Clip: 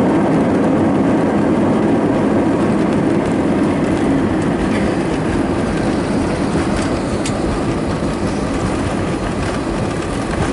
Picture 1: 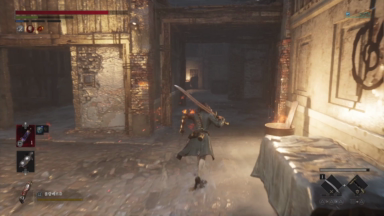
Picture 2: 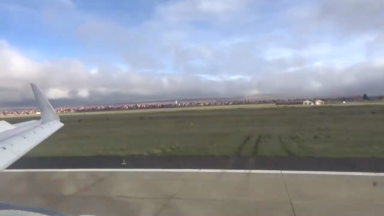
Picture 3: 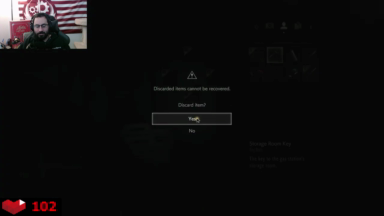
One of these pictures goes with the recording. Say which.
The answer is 2